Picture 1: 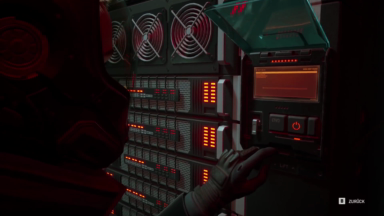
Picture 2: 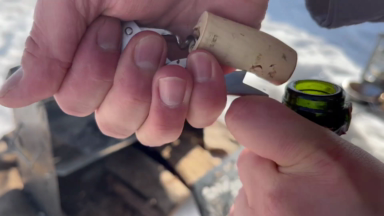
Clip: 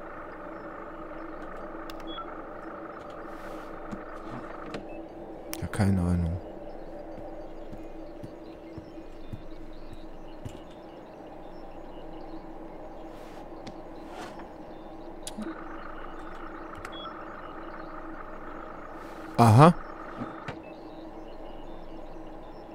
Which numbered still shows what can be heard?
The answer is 1